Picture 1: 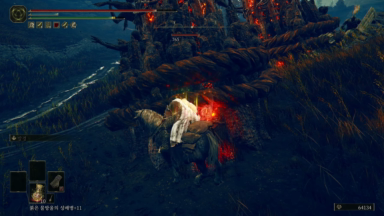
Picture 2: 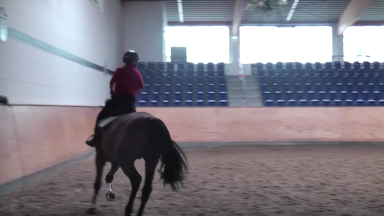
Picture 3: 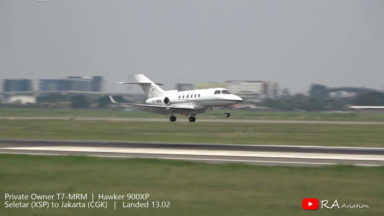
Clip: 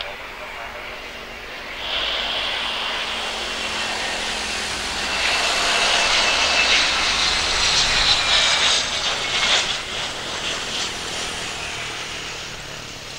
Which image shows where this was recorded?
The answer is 3